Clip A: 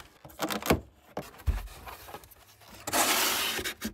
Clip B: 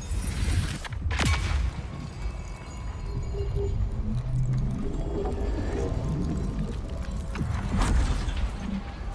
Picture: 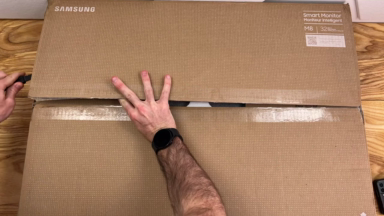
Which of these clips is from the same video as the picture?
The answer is A